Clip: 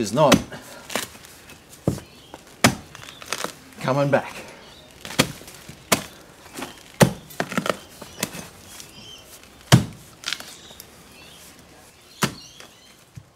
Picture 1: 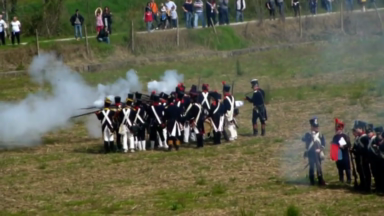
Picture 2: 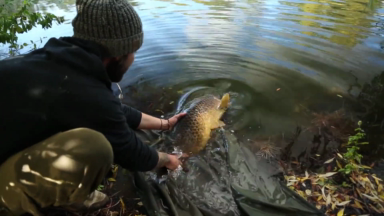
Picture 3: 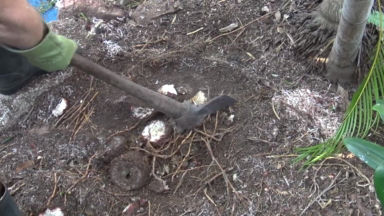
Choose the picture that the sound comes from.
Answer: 3